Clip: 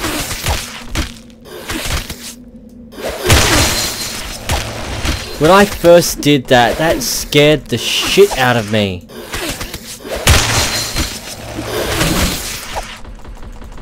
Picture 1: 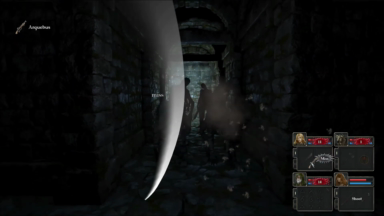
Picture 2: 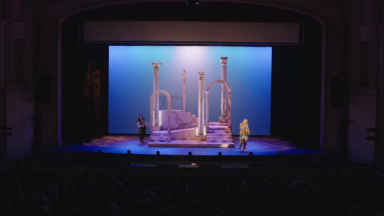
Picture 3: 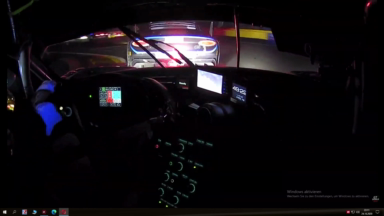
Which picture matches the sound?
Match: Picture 1